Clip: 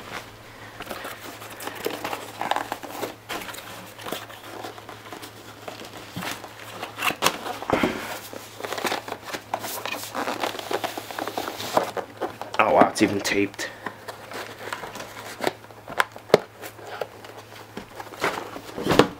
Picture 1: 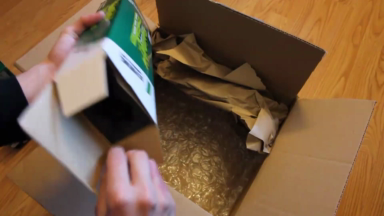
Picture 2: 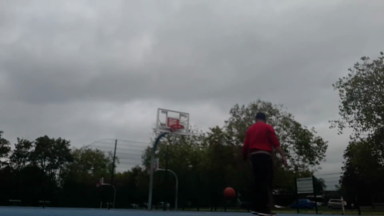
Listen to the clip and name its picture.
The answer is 1